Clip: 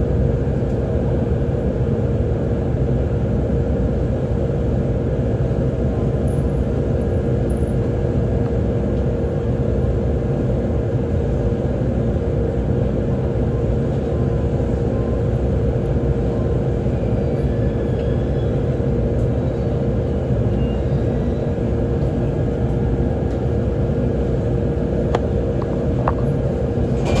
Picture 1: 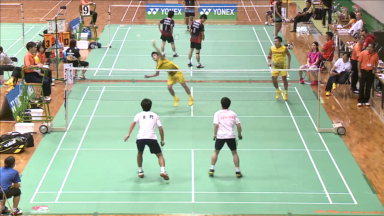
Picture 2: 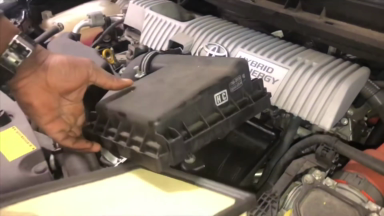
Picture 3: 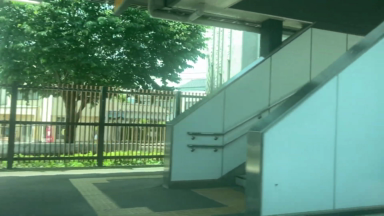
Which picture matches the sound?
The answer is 3